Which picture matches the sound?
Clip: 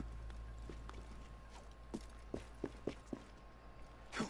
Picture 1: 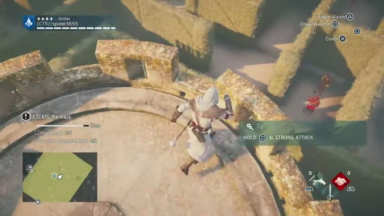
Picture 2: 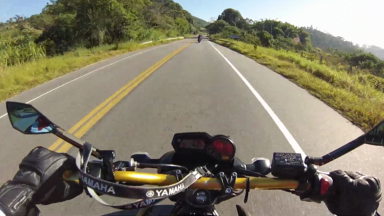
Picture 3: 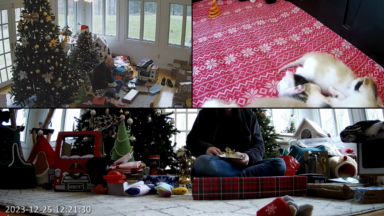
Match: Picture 1